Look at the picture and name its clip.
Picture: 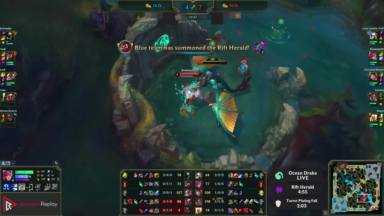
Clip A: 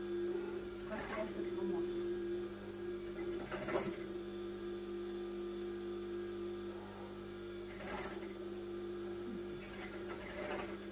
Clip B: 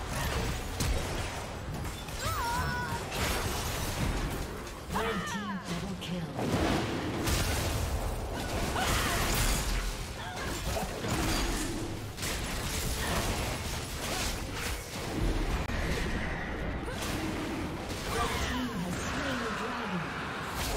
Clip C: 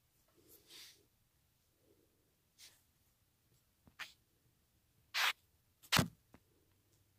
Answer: B